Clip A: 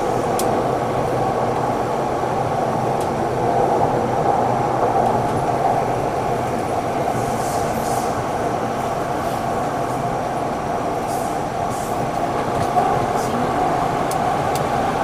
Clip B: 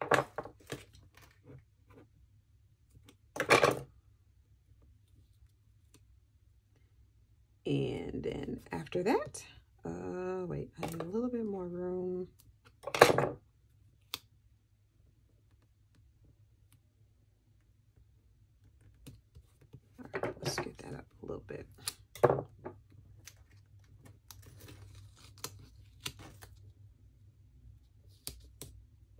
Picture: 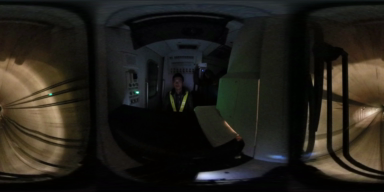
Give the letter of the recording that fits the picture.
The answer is A